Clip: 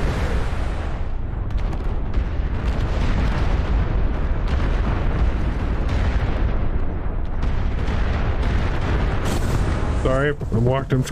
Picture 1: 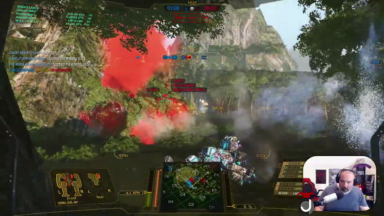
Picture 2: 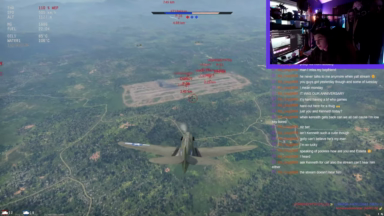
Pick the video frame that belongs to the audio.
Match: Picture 1